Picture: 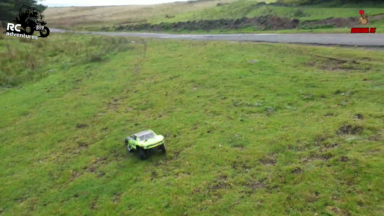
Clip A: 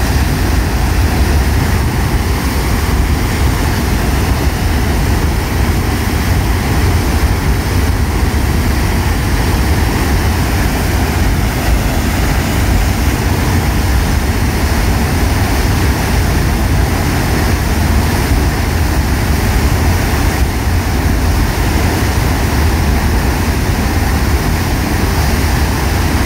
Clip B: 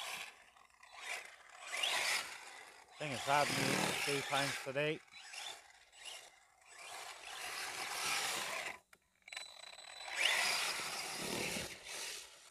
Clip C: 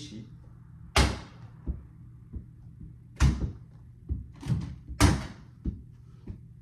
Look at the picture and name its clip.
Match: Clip B